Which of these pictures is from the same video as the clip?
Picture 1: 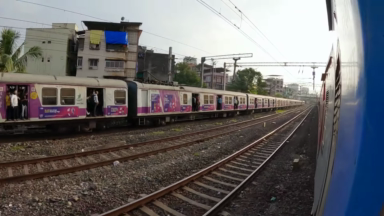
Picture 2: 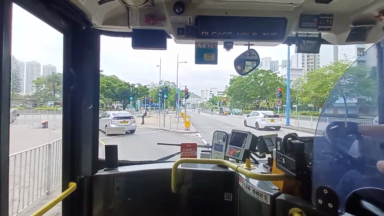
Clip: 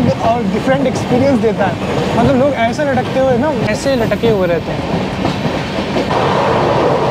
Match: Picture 1